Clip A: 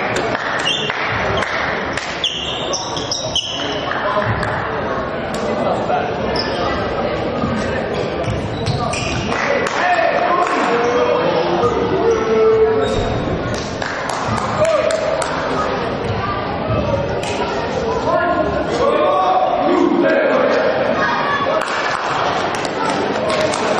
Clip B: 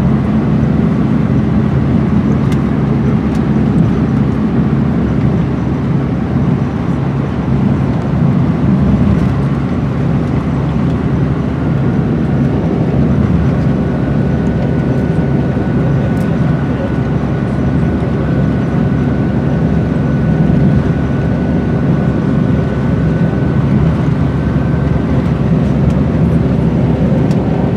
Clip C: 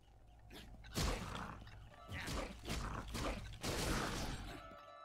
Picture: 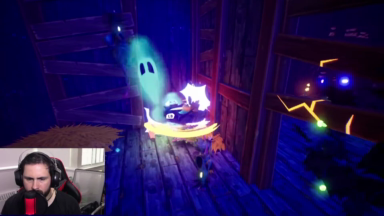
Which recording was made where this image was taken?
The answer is C